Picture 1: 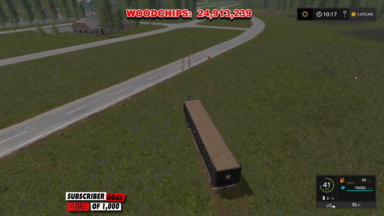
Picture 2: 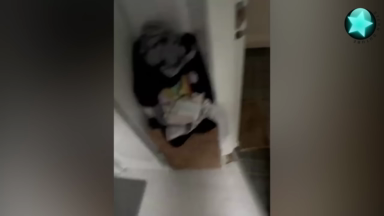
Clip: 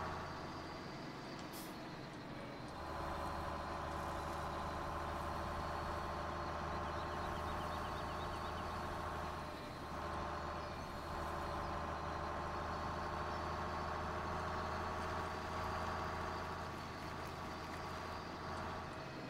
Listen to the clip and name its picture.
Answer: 1